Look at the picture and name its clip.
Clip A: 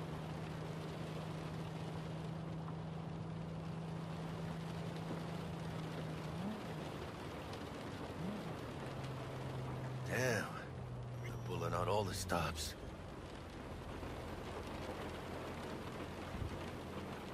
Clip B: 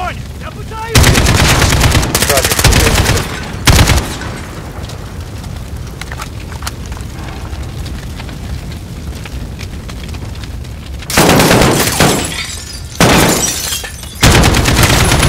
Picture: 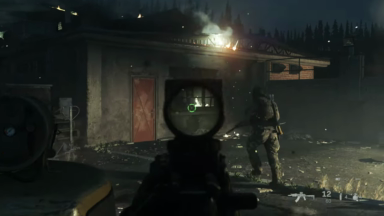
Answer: B